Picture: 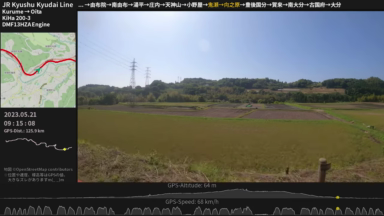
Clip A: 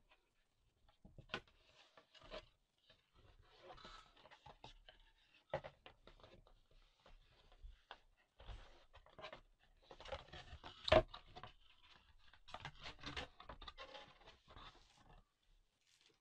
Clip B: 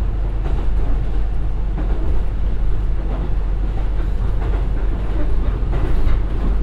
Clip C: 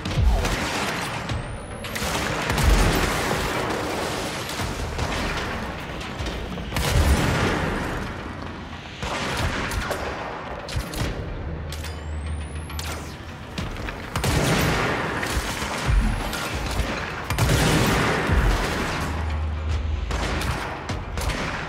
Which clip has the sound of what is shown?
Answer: B